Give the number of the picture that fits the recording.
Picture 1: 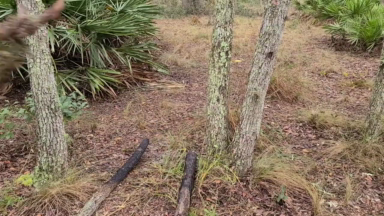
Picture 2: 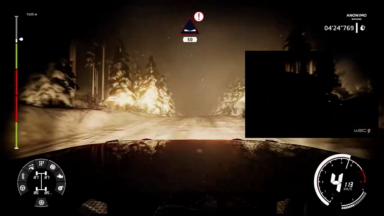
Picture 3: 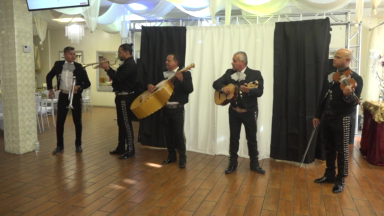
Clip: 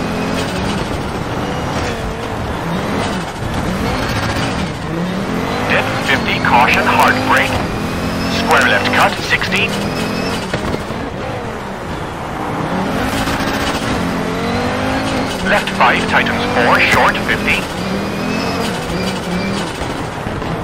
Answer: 2